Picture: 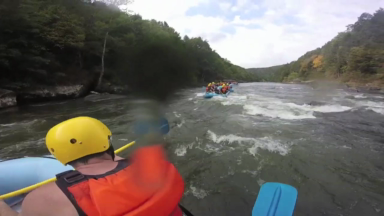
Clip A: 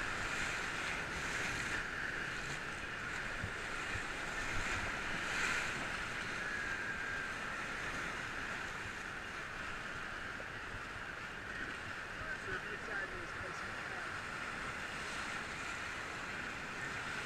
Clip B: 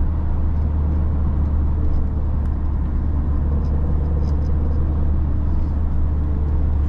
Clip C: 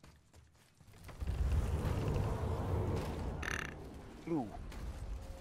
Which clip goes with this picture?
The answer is A